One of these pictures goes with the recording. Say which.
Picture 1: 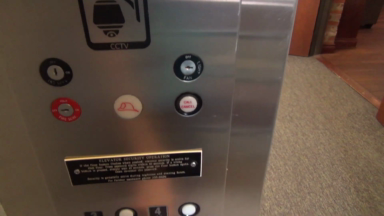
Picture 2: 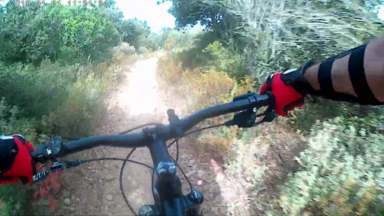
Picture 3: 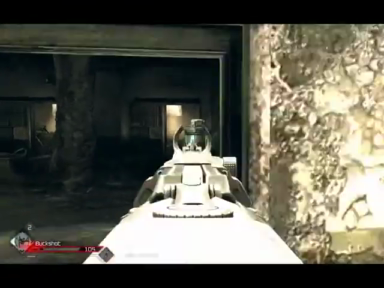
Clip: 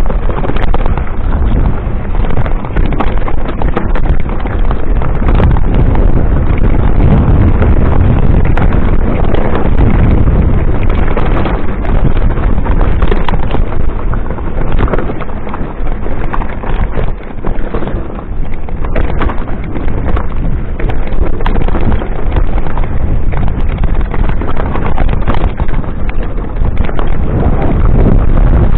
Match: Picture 2